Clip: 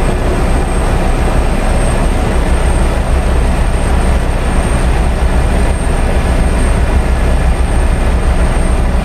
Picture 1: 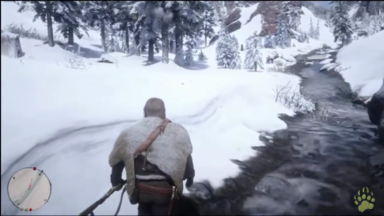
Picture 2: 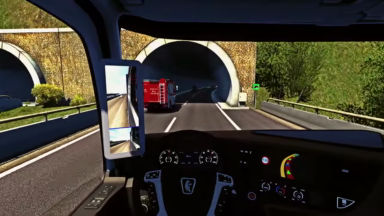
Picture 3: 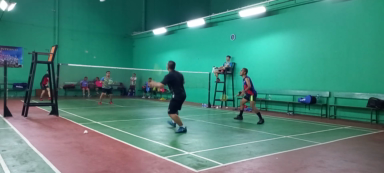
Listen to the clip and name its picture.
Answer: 2